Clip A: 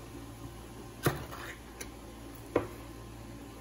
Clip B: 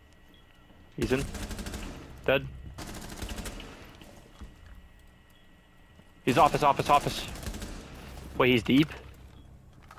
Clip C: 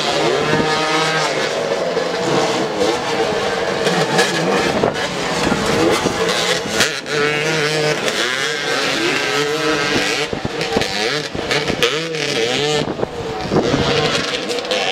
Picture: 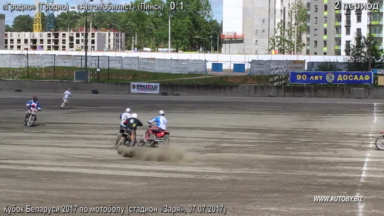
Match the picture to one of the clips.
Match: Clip C